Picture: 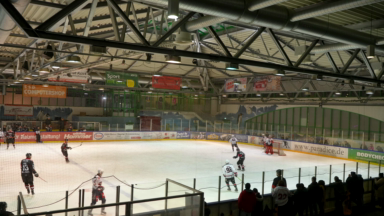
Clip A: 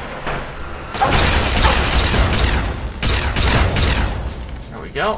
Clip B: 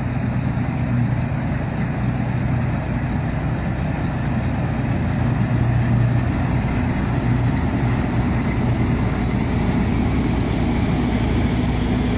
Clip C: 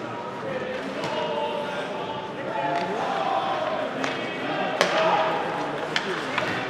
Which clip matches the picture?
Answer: C